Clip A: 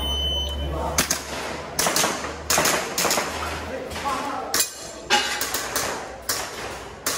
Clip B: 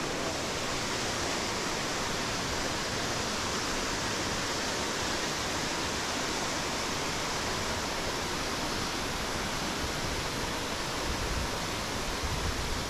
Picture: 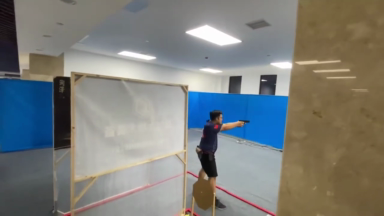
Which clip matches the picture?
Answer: A